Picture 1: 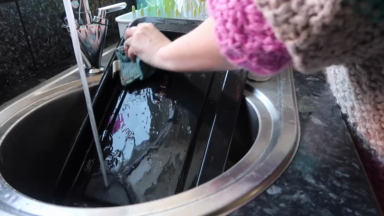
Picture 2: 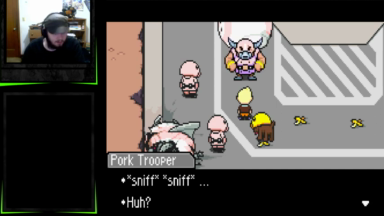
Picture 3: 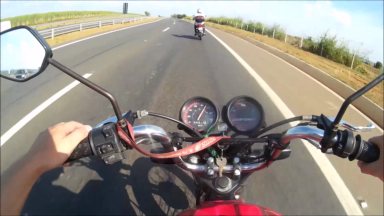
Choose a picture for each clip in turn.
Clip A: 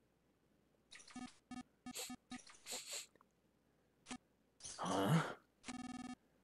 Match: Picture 2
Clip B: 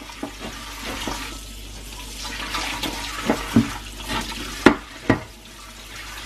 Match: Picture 1